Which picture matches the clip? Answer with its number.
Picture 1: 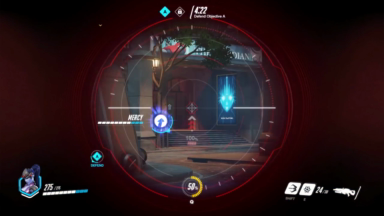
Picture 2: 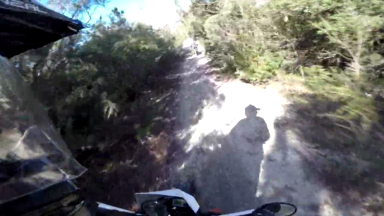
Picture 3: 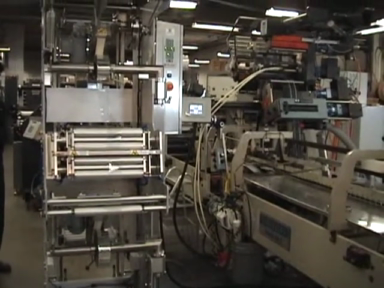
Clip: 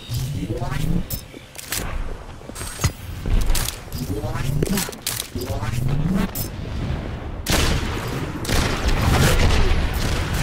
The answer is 1